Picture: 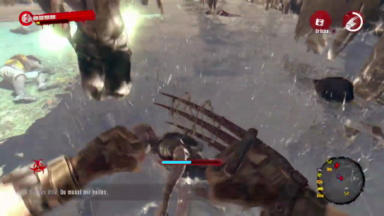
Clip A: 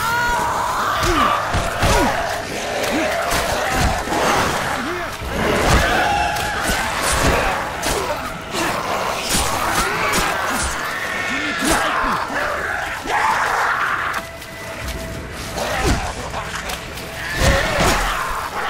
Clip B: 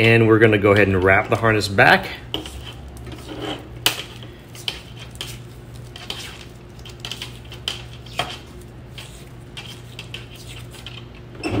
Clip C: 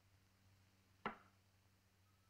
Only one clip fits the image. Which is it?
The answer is A